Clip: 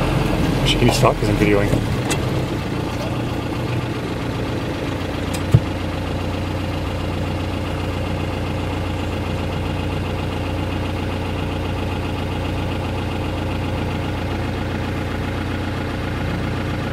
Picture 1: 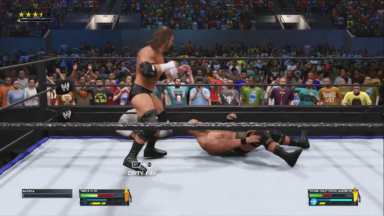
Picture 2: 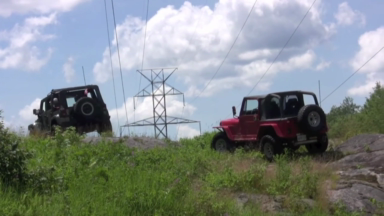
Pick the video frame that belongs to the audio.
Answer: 2